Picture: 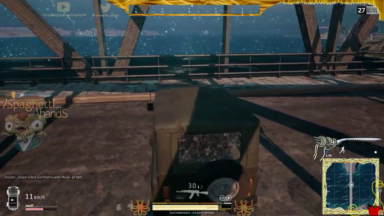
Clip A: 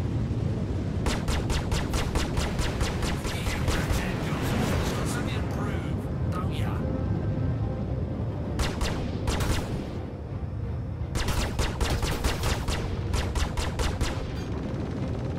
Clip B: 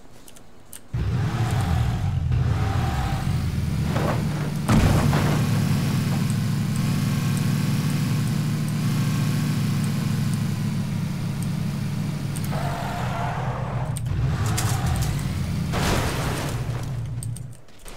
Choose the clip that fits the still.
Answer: B